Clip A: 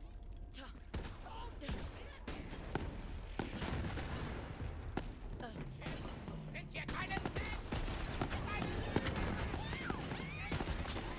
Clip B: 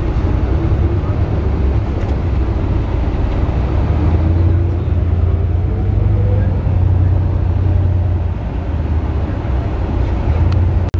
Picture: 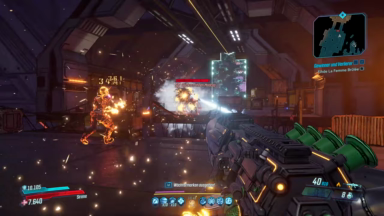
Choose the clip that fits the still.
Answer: A